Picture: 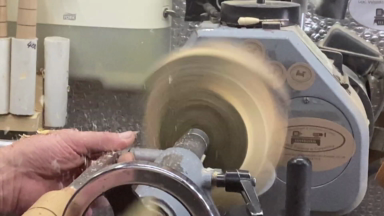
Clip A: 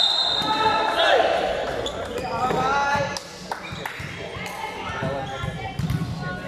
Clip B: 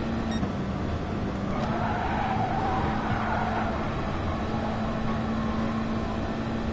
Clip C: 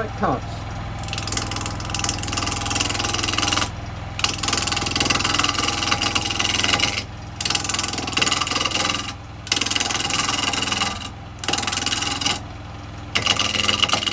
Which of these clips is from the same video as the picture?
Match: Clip C